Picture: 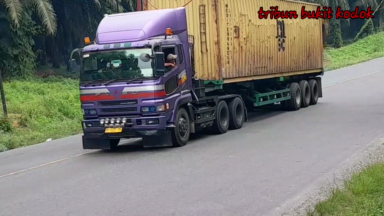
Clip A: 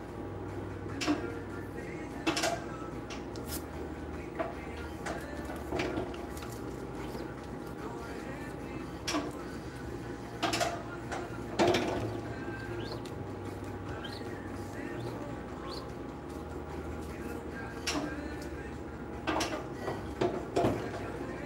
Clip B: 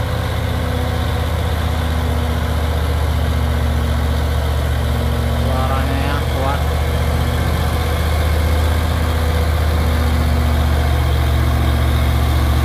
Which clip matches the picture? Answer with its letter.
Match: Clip B